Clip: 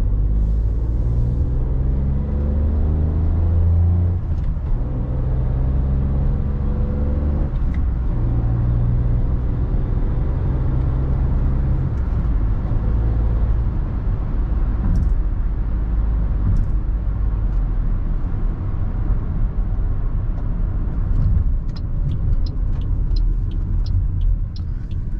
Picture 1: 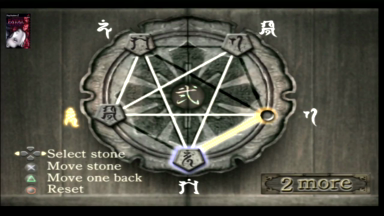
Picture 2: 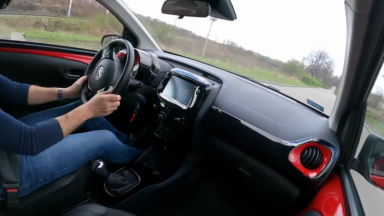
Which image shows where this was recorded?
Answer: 2